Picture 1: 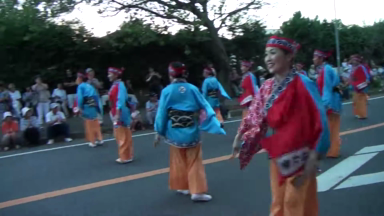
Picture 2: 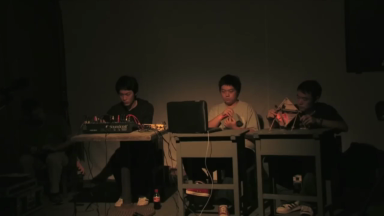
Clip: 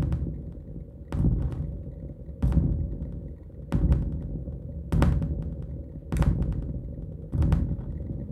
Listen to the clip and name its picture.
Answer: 2